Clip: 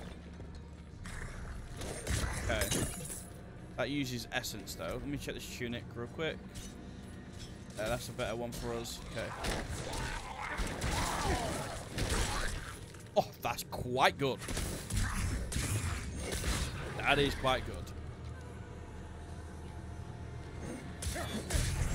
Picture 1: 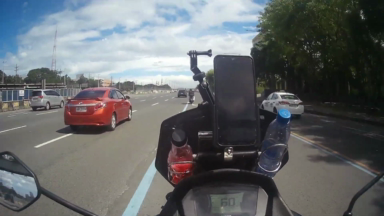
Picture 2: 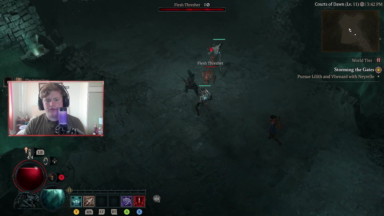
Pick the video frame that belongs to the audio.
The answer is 2